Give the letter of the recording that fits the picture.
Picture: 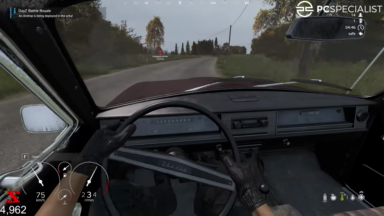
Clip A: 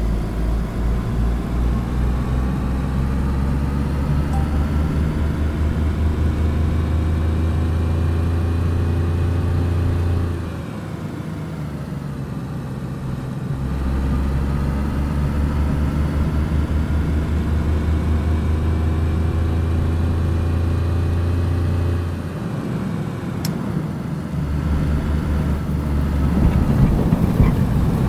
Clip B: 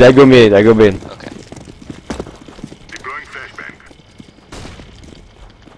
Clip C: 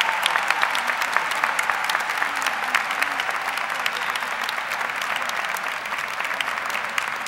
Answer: A